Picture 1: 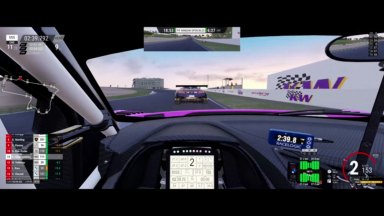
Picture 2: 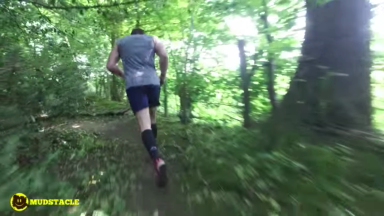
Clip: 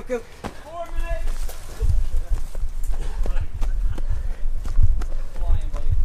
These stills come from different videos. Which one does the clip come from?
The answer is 2